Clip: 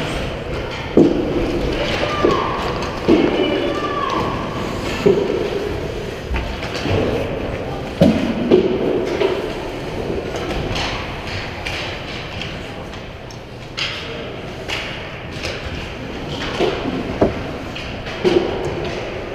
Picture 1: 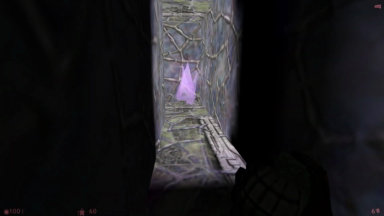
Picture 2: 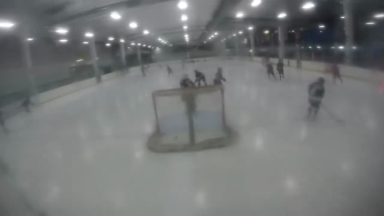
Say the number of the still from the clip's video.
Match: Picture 2